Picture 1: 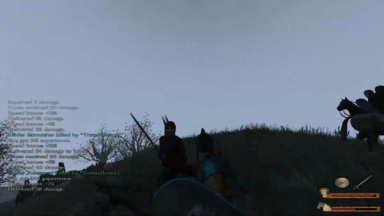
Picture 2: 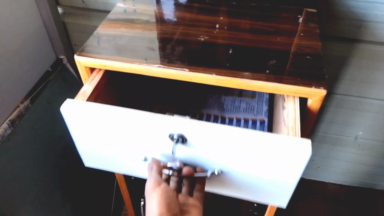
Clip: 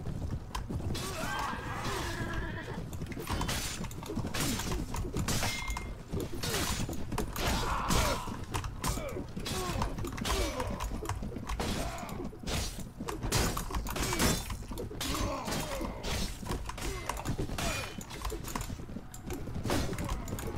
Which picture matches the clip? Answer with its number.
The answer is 1